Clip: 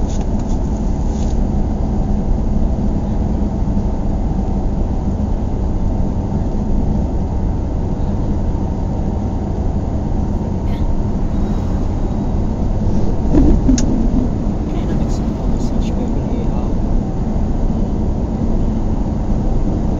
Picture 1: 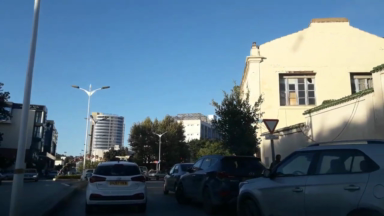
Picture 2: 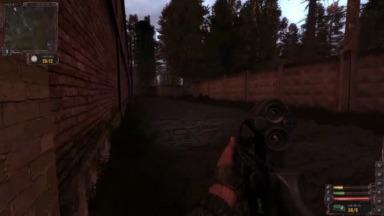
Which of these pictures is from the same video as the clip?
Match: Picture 1